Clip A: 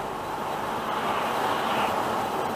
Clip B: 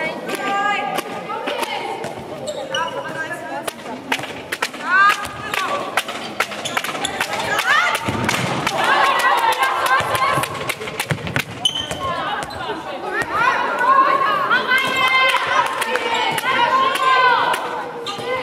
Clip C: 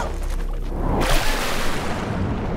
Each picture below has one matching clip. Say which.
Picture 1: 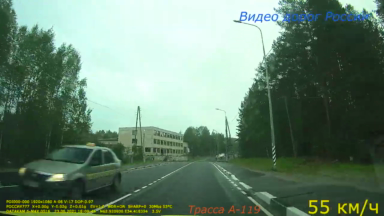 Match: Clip A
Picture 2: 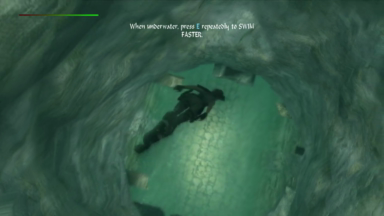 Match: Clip C